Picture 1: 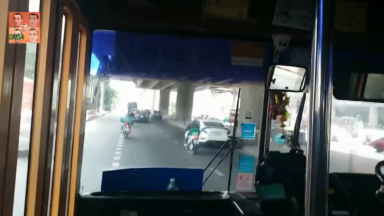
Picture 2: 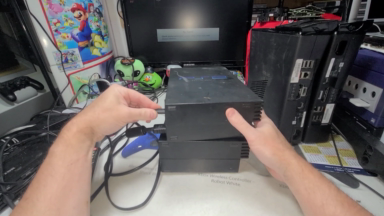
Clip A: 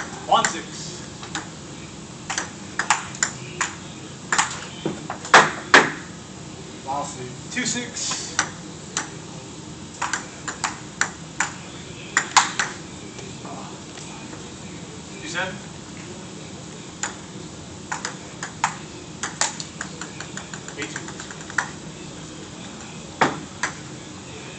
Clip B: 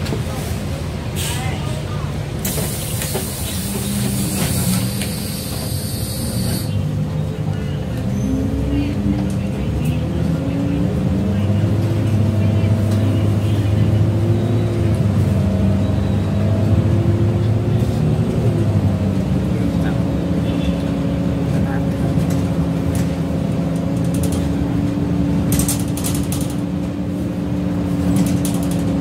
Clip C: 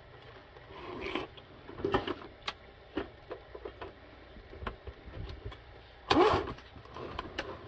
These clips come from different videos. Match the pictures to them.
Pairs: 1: B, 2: C